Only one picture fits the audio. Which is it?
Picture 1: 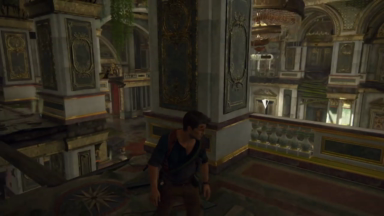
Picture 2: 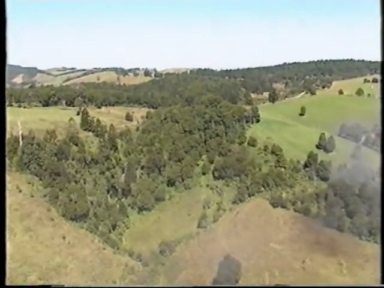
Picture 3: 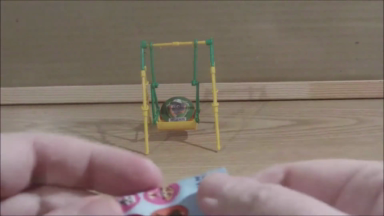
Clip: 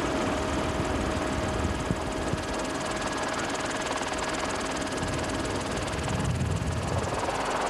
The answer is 2